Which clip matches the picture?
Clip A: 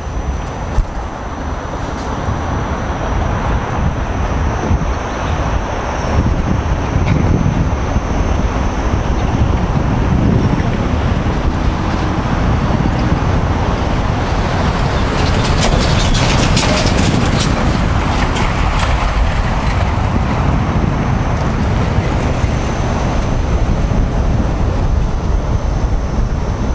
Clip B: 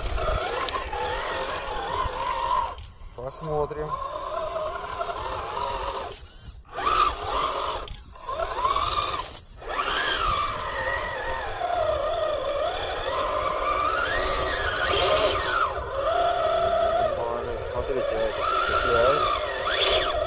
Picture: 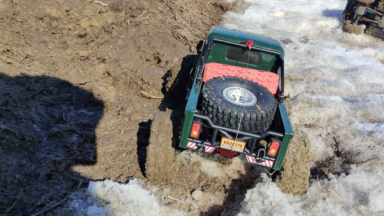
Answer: B